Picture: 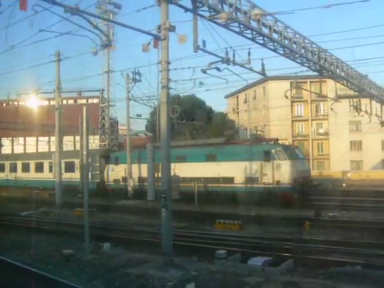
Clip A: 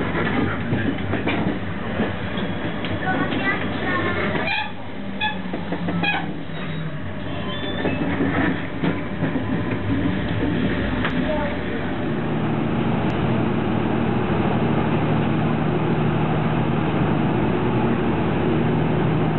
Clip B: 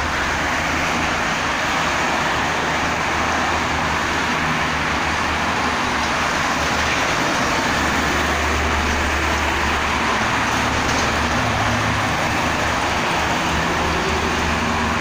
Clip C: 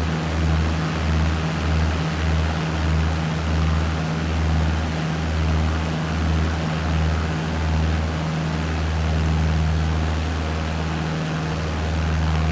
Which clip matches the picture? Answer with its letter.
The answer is A